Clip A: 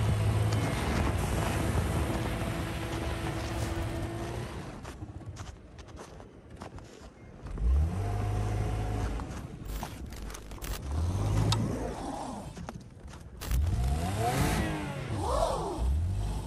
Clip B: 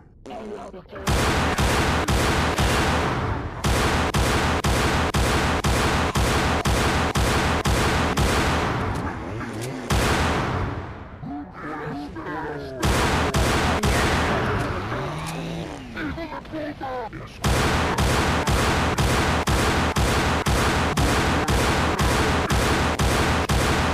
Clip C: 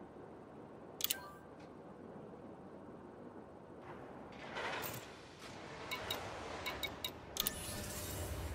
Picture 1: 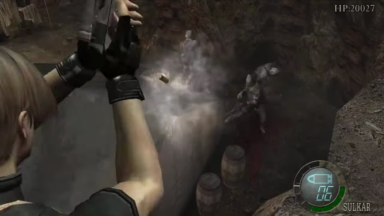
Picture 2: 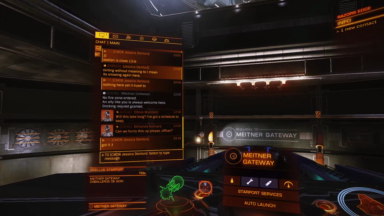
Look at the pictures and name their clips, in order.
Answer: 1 B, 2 C